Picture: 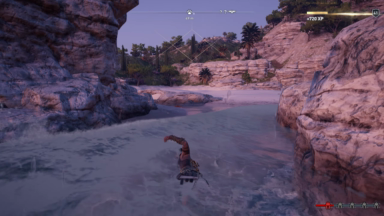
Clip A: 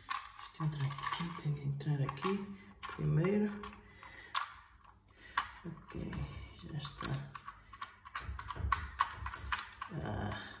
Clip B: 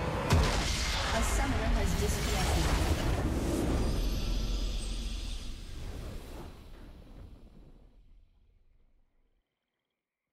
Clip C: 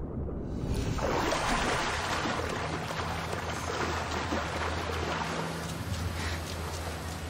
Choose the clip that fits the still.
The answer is C